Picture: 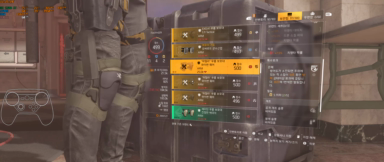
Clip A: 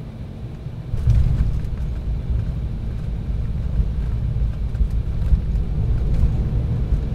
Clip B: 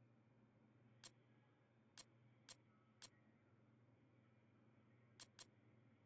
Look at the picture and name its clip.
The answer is B